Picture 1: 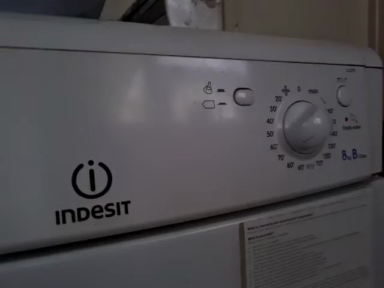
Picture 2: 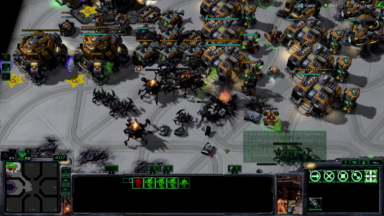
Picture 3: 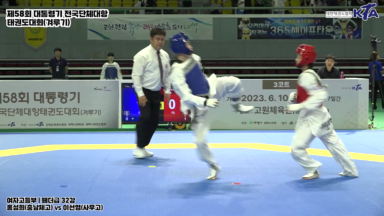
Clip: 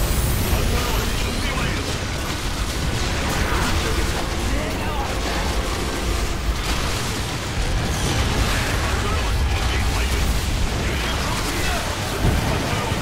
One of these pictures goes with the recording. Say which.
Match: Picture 2